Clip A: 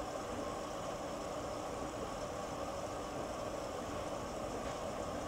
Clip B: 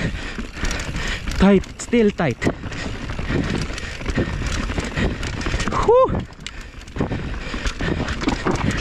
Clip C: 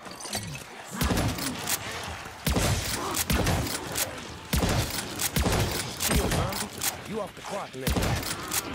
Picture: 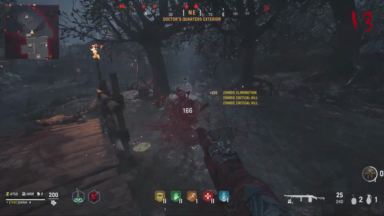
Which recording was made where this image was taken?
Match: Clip C